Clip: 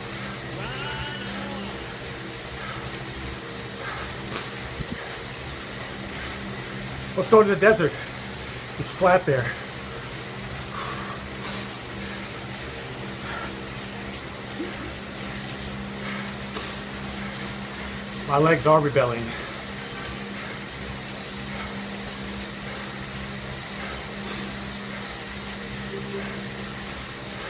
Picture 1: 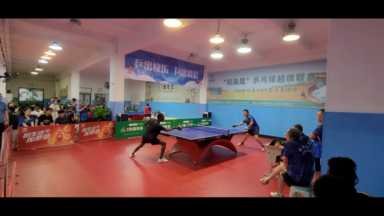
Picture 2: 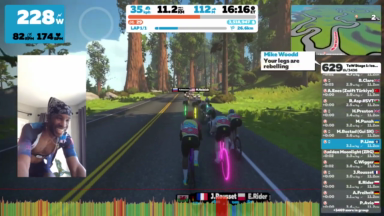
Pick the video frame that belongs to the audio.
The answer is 2